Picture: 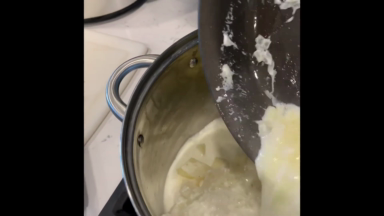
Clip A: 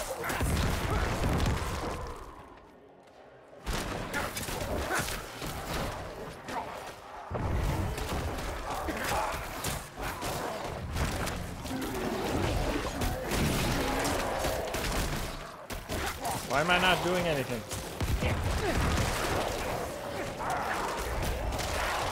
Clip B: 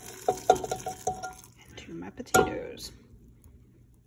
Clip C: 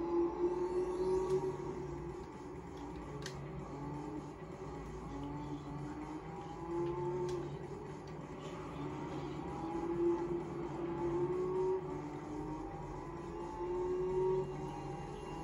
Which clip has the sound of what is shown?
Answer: B